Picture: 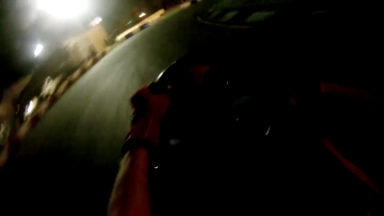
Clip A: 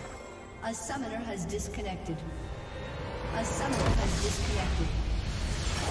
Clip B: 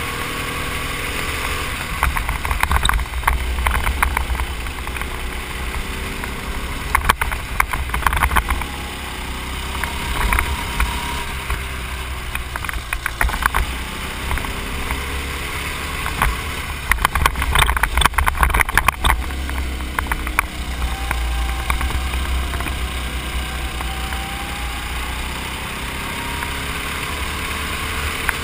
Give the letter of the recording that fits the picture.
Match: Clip B